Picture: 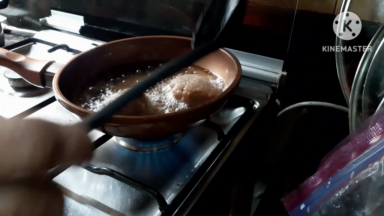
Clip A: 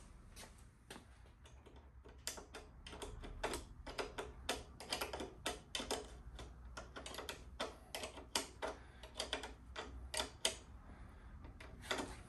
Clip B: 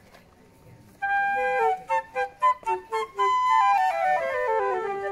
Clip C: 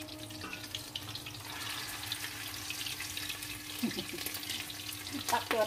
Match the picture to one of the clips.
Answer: C